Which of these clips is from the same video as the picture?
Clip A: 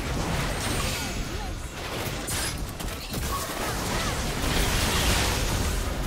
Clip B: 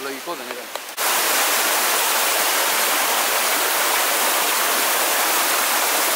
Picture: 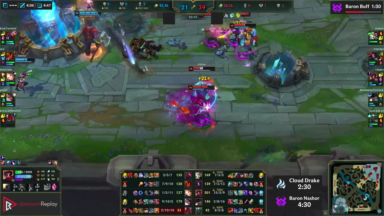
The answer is A